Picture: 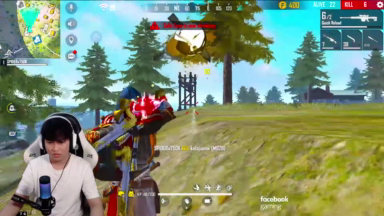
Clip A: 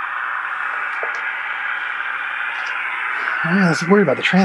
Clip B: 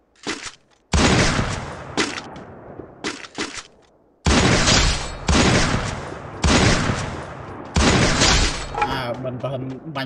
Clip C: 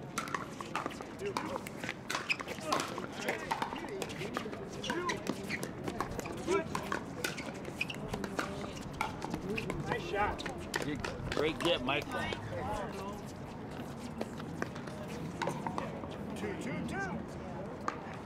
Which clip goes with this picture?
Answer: B